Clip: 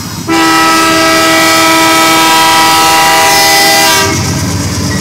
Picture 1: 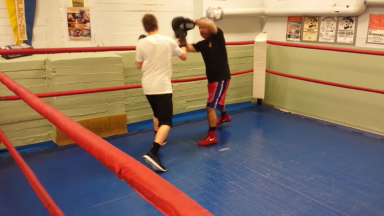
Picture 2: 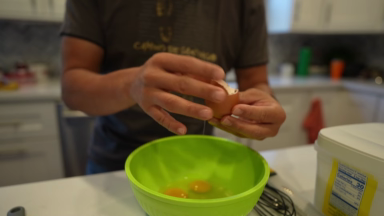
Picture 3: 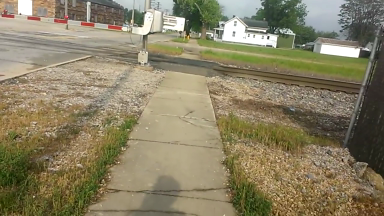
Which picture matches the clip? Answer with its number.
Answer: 3